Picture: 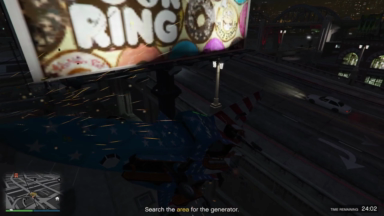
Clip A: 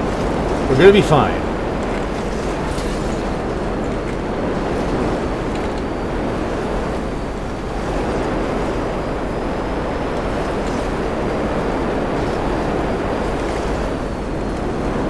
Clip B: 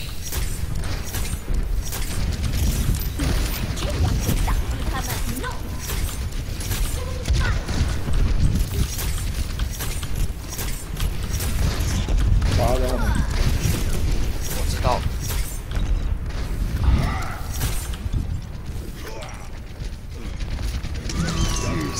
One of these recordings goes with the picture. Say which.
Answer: A